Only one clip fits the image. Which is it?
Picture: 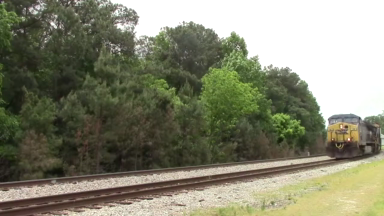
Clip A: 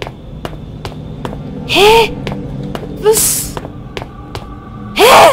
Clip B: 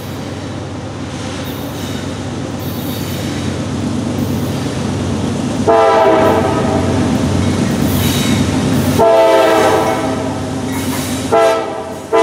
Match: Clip B